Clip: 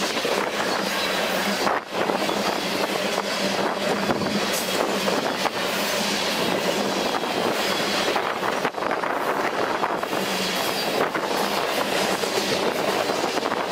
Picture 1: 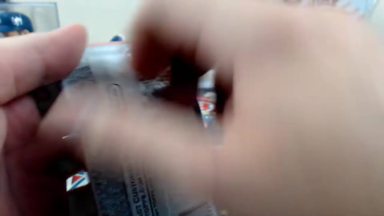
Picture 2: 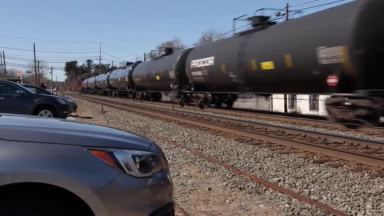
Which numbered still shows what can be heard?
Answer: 2